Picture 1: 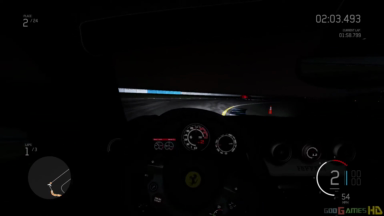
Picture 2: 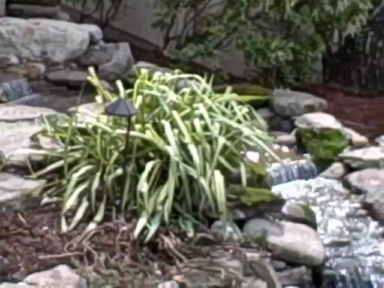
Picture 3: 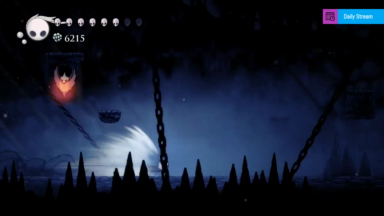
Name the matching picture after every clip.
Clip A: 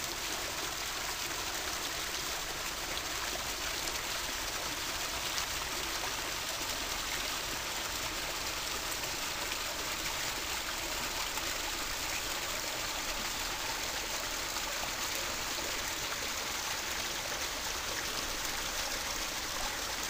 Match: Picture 2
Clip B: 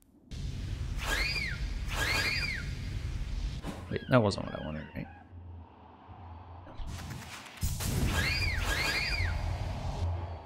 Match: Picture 3